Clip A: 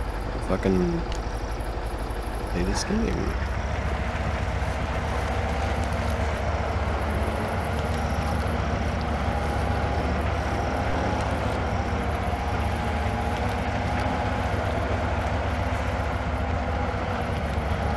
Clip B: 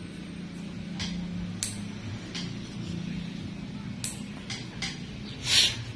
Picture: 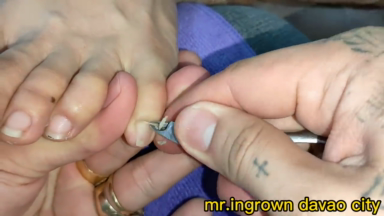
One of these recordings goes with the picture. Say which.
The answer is B